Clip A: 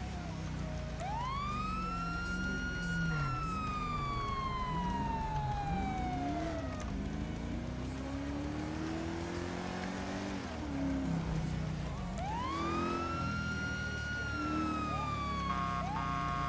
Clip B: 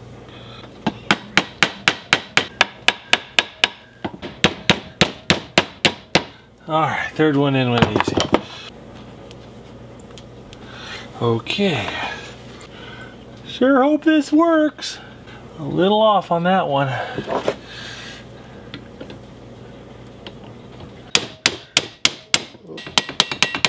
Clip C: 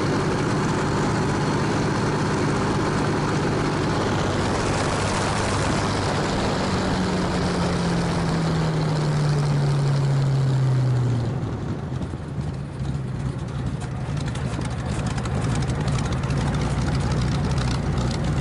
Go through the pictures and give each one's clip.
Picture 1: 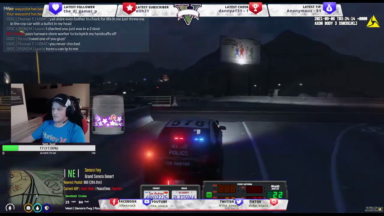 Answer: A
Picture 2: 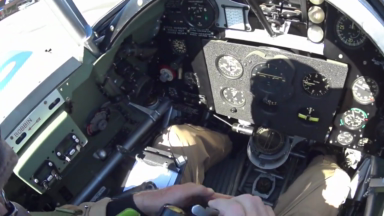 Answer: C